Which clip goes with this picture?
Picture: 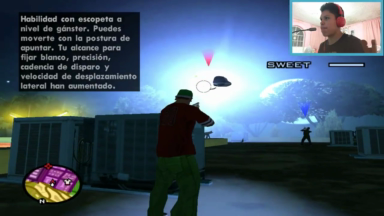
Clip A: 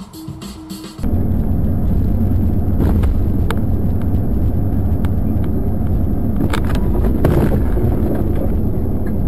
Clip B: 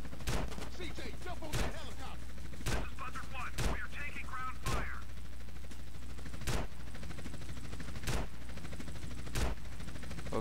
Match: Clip B